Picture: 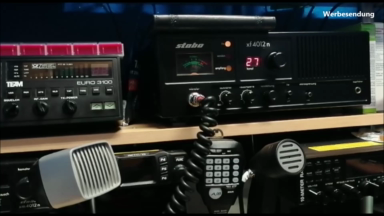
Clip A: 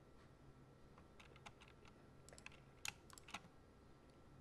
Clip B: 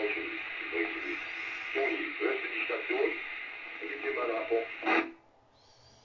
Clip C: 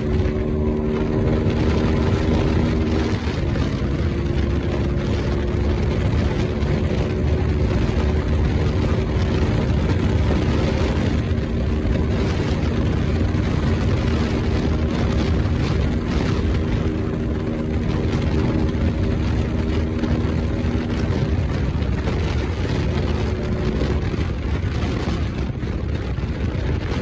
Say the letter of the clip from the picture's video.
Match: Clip B